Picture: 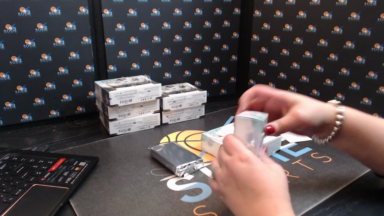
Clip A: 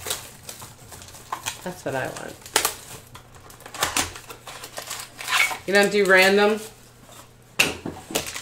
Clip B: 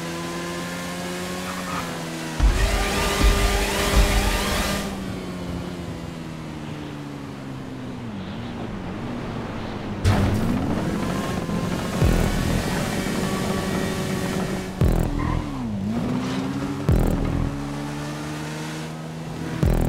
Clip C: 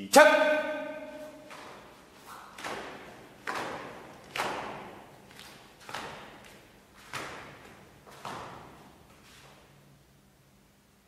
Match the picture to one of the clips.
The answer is A